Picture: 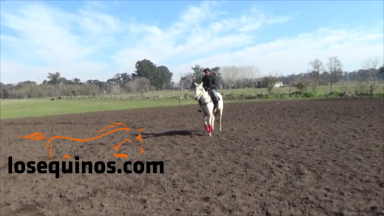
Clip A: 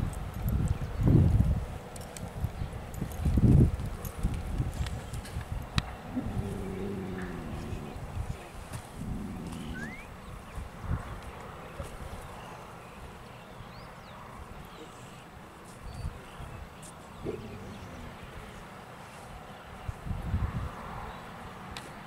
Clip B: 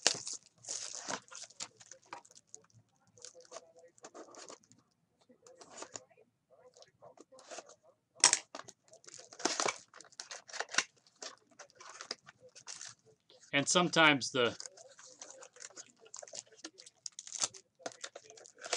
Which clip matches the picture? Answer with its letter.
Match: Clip A